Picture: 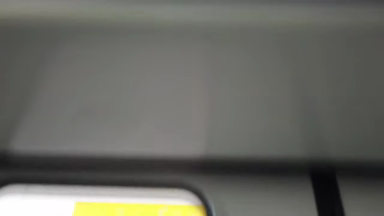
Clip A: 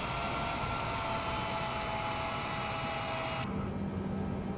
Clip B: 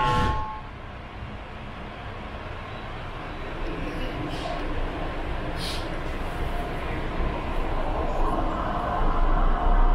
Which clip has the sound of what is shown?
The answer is B